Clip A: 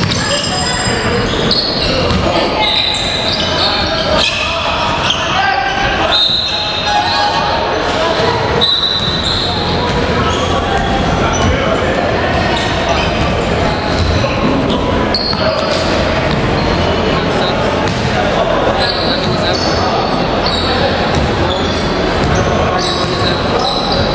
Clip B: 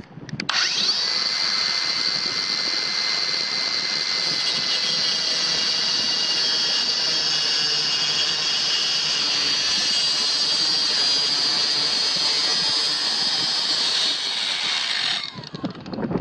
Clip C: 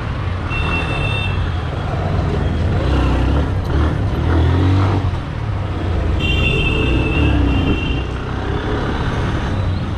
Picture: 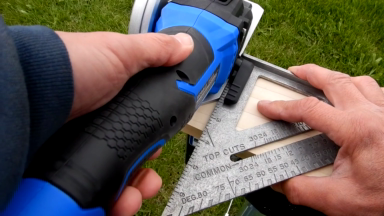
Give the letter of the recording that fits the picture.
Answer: B